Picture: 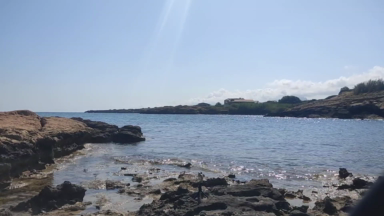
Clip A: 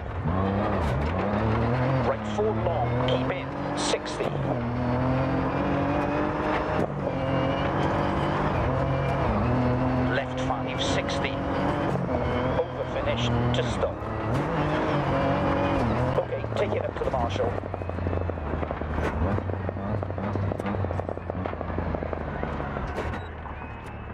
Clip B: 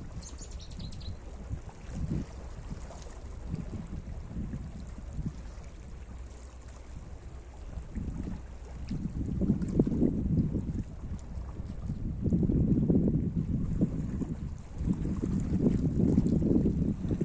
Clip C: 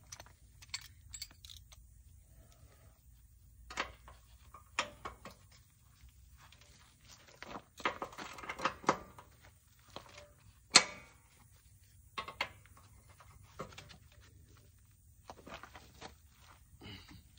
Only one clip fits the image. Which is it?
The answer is B